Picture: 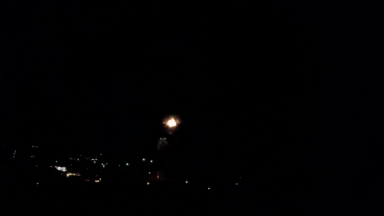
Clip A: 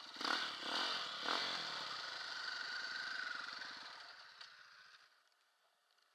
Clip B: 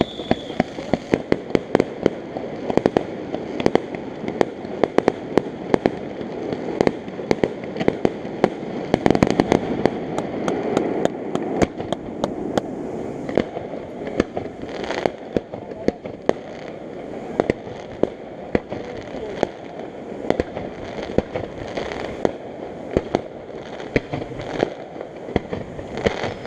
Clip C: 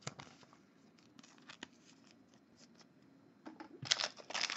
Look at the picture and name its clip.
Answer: B